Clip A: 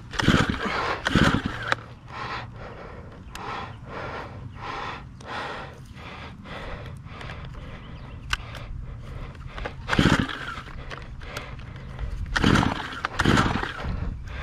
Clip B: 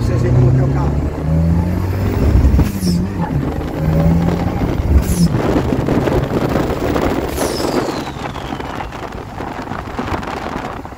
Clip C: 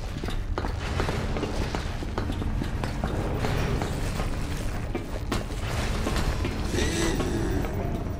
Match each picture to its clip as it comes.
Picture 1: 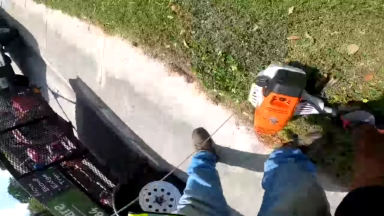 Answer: A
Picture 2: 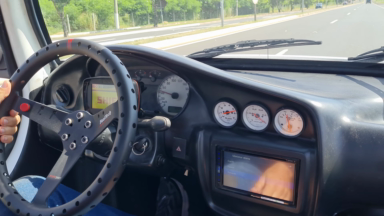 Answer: B